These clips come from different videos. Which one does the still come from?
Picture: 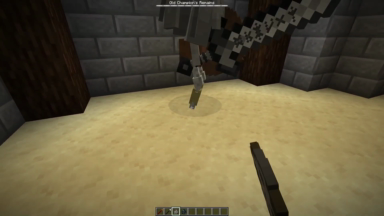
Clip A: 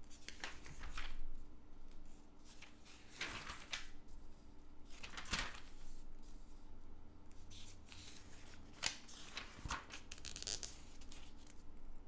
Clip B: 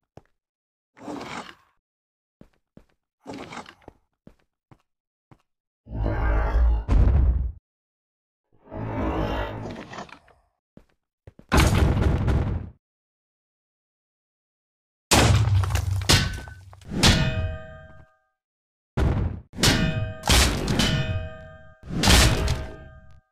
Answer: B